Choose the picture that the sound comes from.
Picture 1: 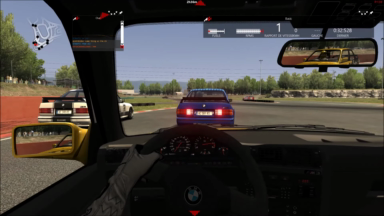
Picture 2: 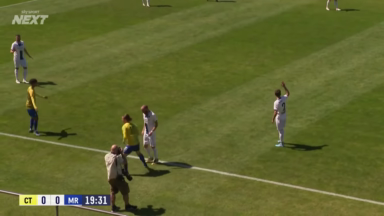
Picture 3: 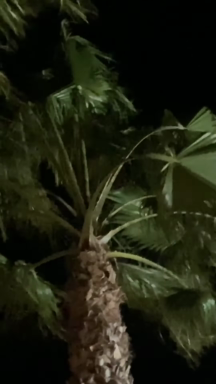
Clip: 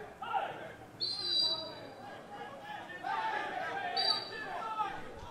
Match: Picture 2